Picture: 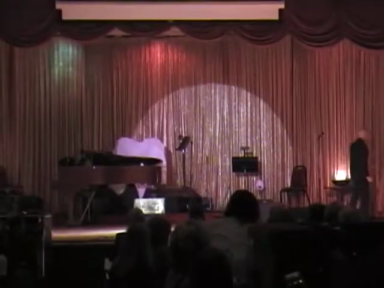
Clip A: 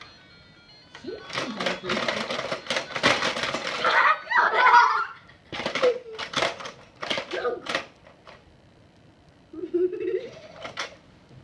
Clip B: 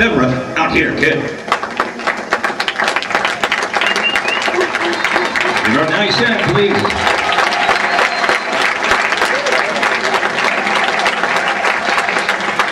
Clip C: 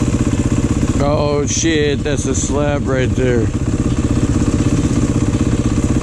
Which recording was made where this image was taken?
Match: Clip B